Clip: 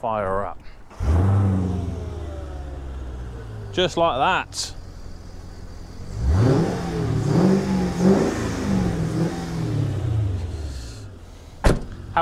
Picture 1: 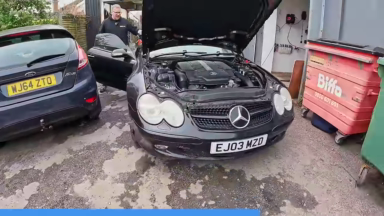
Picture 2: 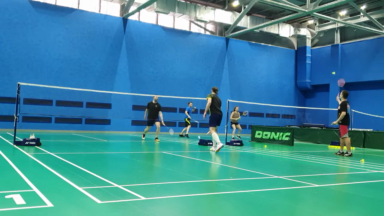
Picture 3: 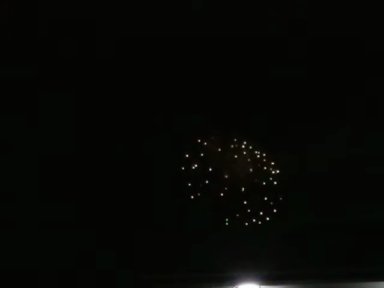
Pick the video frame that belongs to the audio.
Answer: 1